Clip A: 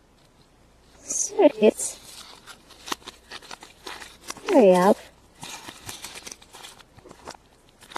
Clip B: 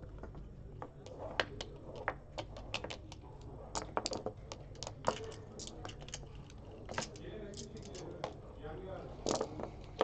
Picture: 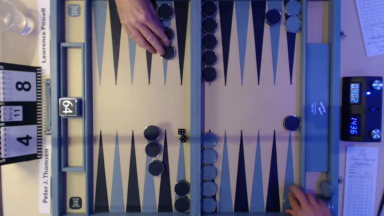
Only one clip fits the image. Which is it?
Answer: B